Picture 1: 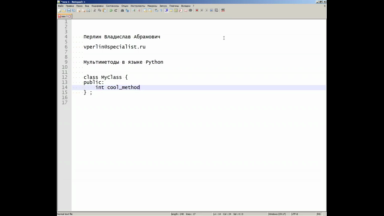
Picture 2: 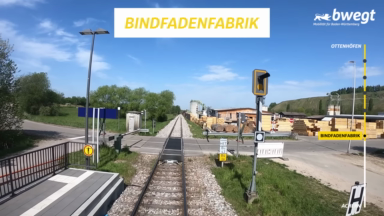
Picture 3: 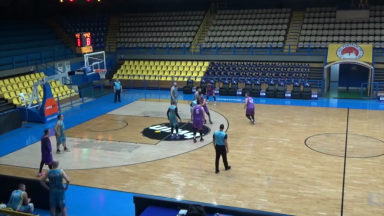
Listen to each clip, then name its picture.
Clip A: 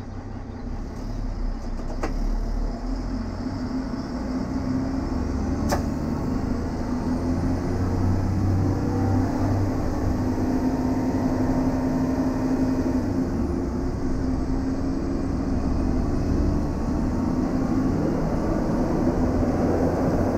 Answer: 2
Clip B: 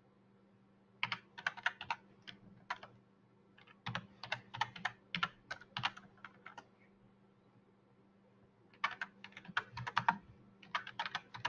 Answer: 1